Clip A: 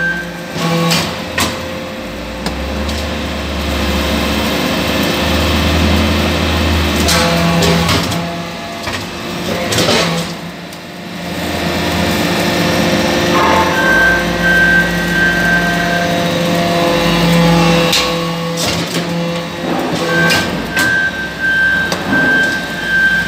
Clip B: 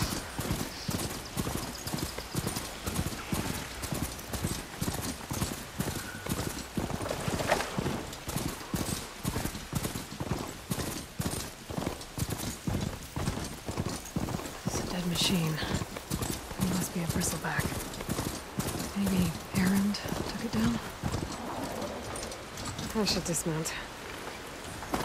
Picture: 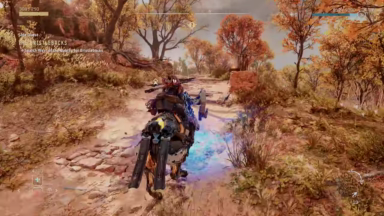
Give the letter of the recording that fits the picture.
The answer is B